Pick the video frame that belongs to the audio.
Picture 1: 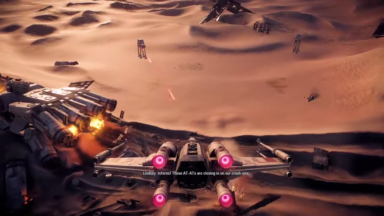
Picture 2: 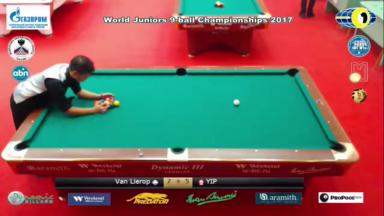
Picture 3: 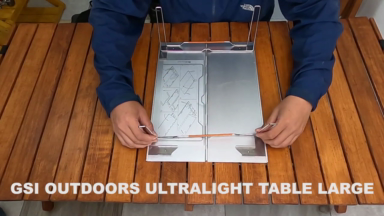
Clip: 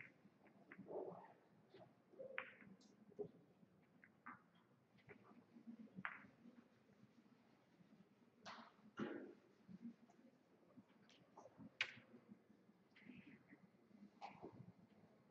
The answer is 2